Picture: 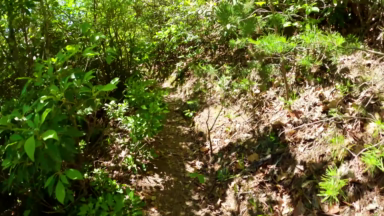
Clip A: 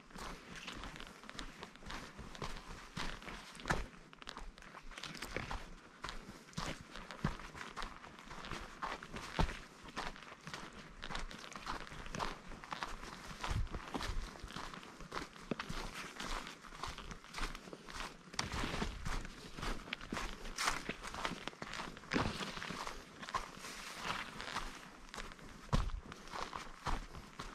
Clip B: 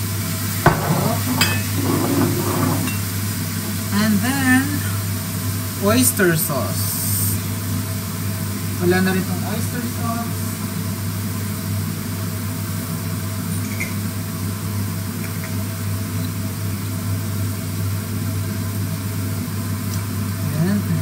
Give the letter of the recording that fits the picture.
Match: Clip A